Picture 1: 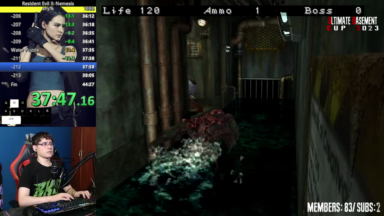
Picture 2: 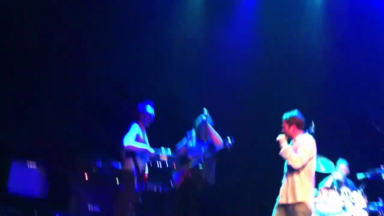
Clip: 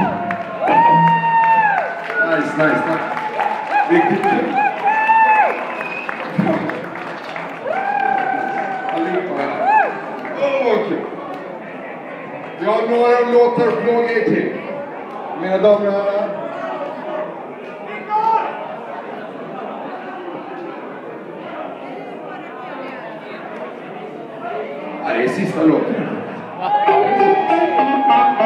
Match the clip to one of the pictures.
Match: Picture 2